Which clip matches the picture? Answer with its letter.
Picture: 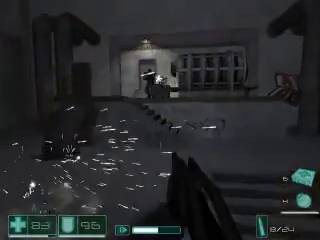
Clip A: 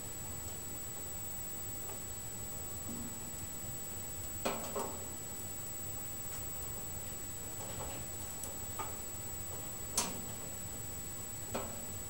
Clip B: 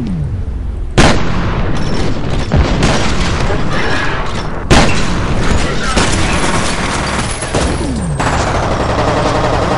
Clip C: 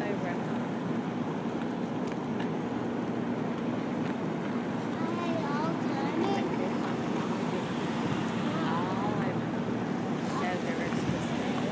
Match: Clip B